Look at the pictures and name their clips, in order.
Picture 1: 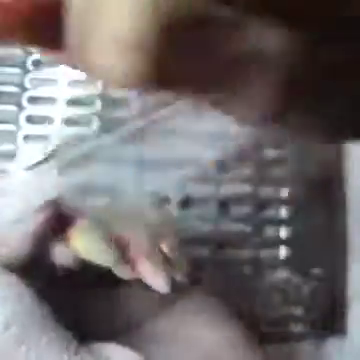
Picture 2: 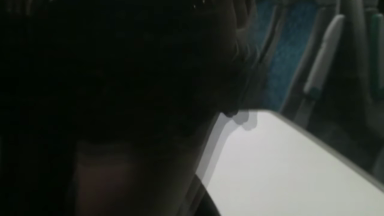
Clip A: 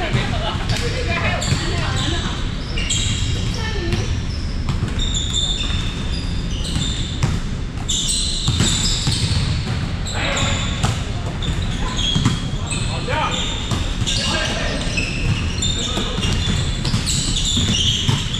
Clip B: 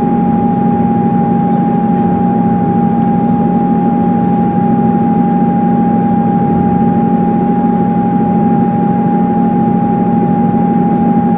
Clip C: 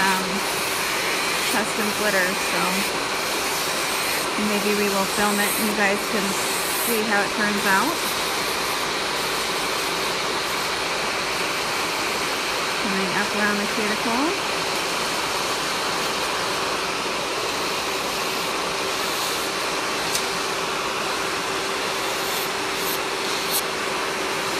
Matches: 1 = C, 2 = B